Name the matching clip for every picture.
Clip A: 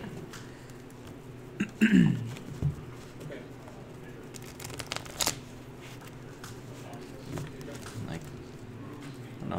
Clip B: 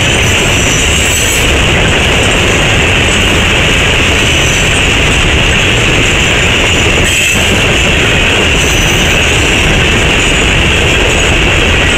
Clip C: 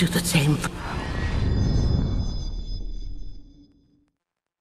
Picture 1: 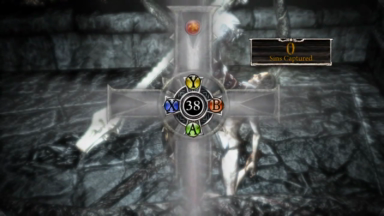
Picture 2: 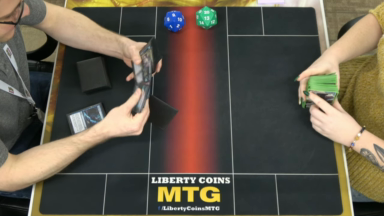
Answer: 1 C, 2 A